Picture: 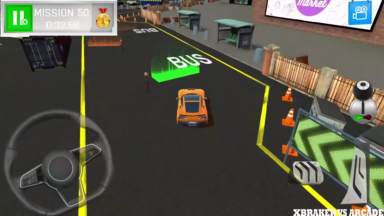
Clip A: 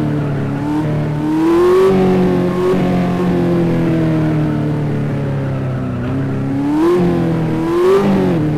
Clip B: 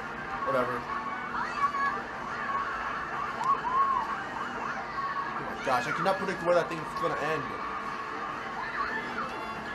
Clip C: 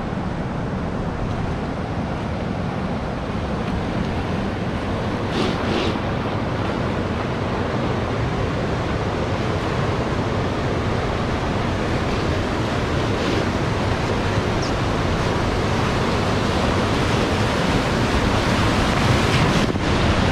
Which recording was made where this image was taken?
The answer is A